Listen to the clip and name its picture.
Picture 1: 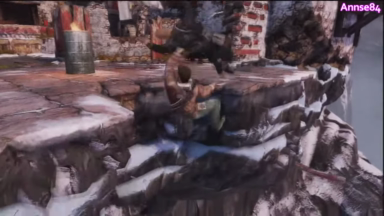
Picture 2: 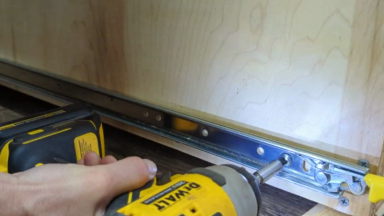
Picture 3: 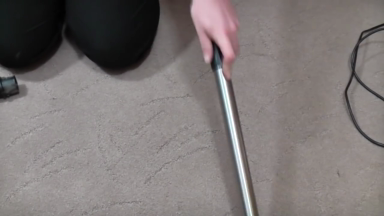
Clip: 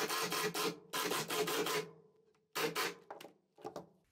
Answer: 2